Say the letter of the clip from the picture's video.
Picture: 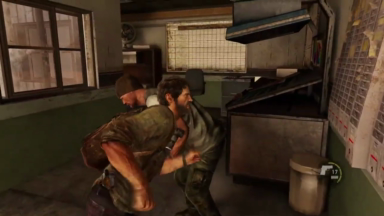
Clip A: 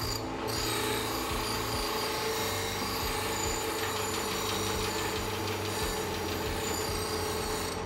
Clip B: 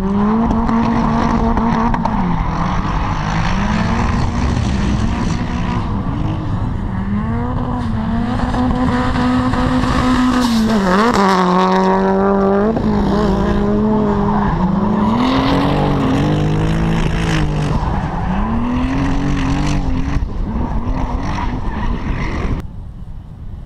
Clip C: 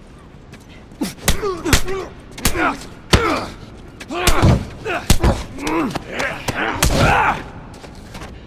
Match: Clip C